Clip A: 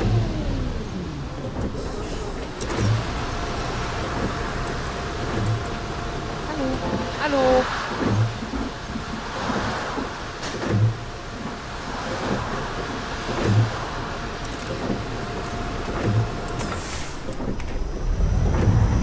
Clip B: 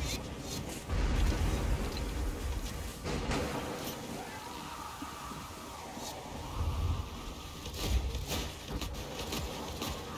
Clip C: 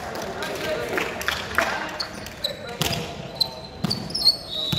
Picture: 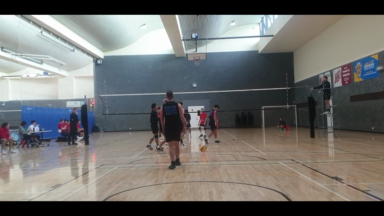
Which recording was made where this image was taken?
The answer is C